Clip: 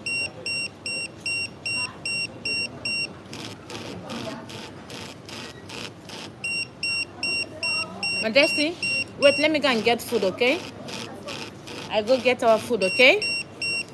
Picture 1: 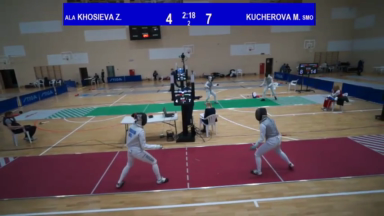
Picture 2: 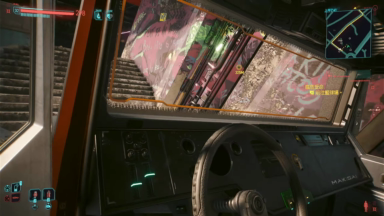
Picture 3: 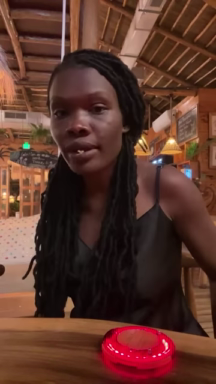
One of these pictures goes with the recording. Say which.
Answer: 3